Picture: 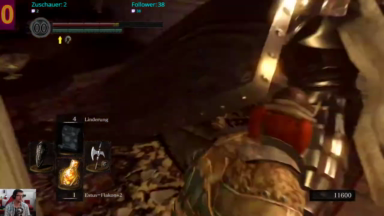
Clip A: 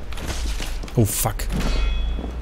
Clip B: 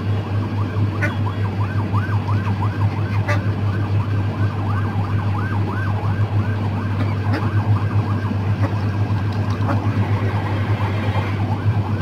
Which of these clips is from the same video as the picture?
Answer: A